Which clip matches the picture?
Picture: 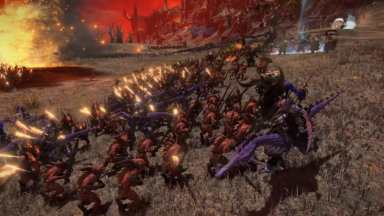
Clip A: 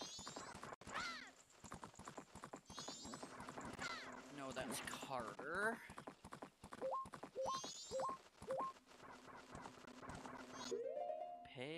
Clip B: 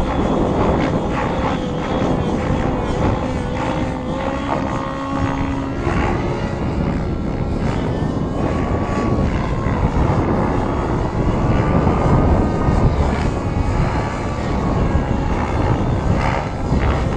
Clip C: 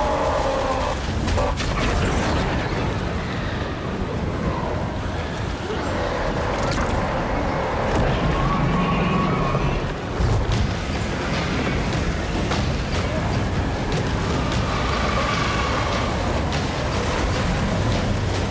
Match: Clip C